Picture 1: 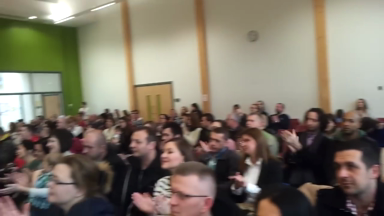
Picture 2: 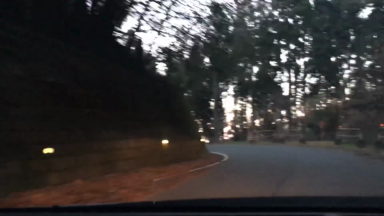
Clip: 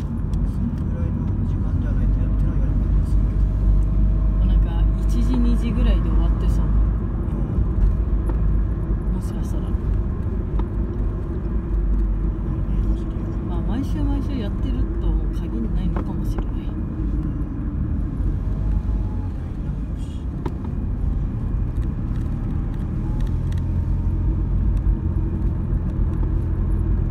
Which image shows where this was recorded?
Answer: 2